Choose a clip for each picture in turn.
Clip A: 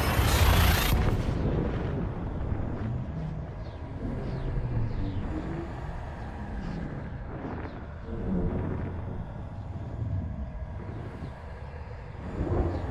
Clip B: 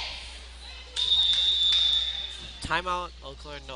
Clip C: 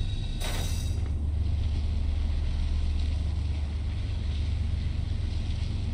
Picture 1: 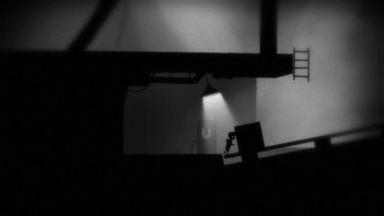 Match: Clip C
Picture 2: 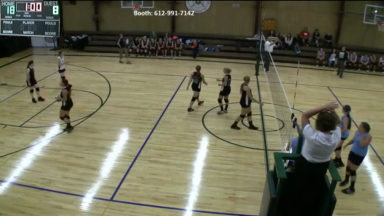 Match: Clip B